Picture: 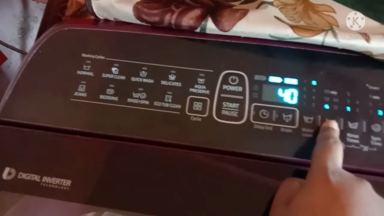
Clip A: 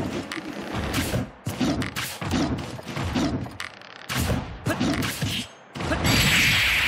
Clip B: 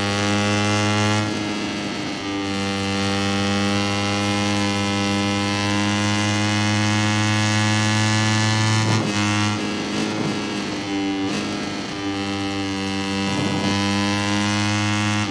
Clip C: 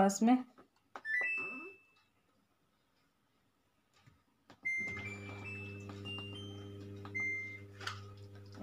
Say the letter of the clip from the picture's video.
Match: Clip C